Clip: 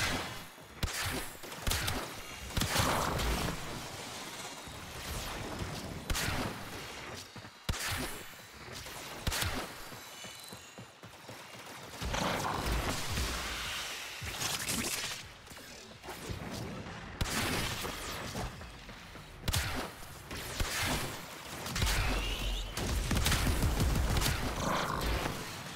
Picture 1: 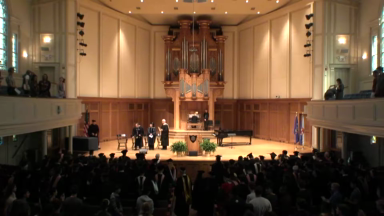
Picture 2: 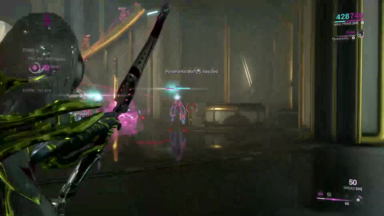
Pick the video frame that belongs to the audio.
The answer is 2